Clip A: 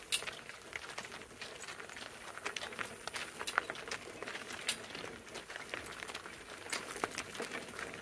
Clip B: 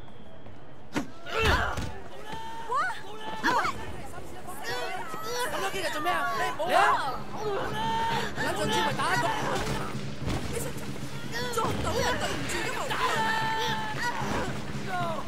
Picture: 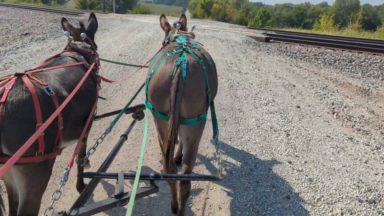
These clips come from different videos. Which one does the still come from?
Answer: A